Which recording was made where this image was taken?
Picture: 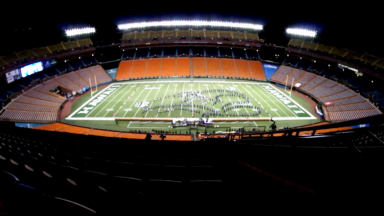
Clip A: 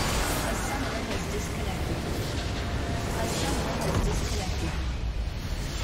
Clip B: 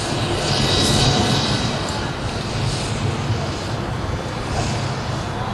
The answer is B